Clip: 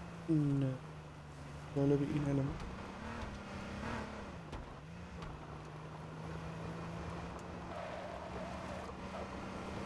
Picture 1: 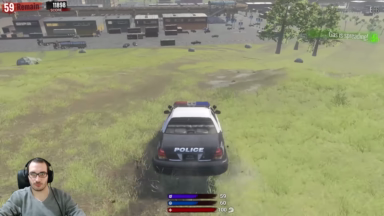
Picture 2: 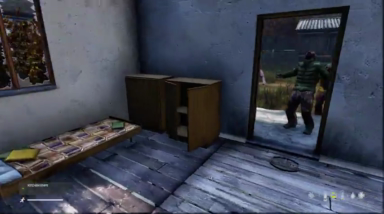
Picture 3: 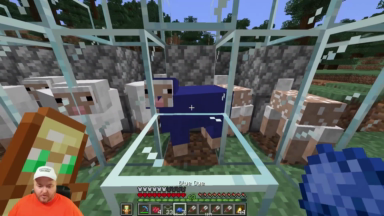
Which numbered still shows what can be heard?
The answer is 1